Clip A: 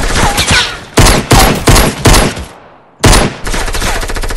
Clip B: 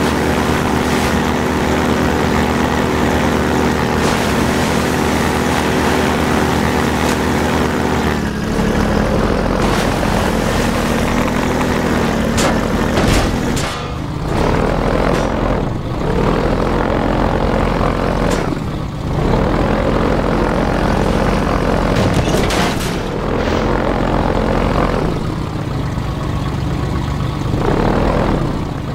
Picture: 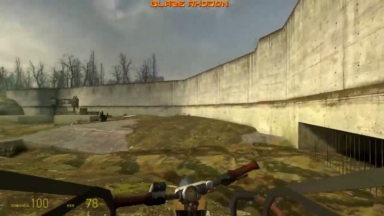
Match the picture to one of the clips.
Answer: B